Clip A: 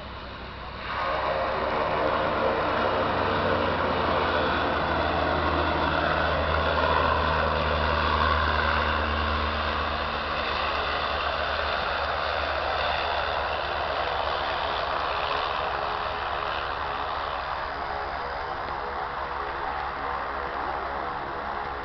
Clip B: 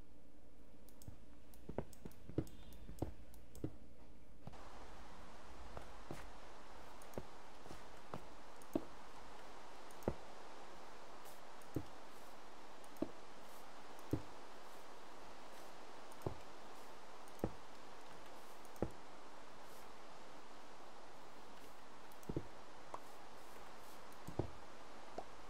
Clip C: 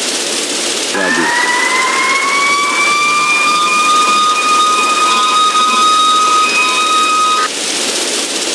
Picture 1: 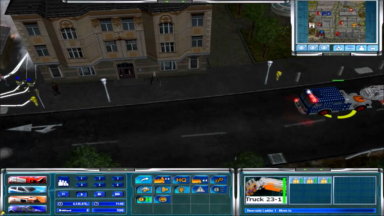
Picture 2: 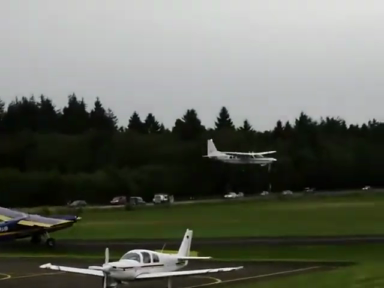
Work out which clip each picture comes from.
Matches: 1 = C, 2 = A